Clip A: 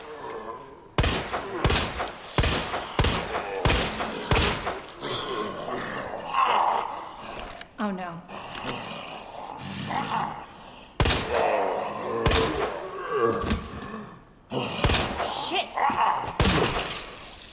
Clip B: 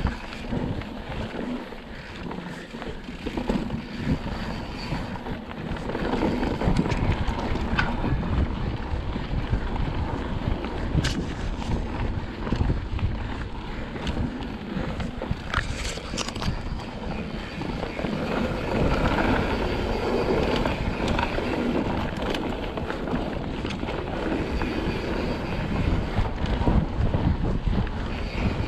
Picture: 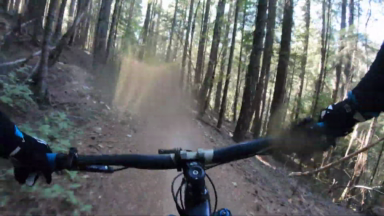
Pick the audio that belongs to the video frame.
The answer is B